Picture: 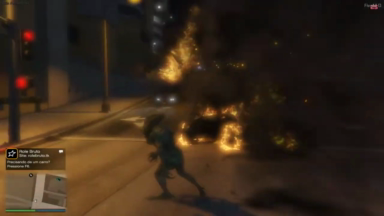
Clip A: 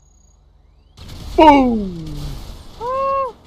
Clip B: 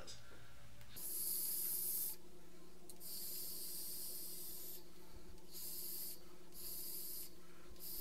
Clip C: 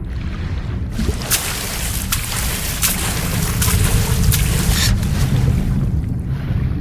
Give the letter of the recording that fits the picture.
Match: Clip A